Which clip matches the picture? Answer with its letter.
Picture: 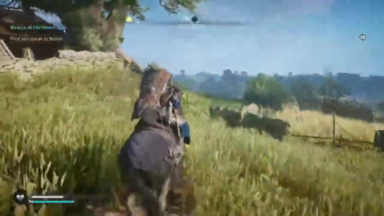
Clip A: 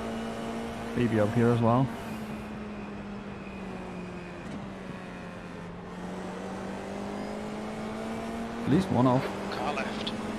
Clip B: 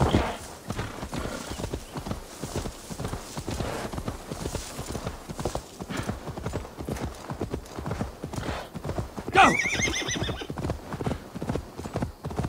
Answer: B